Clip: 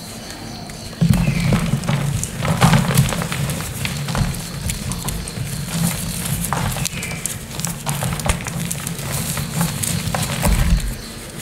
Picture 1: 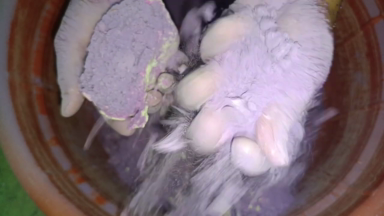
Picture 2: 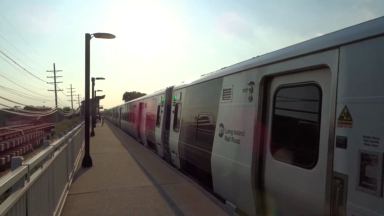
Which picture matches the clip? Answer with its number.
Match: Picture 1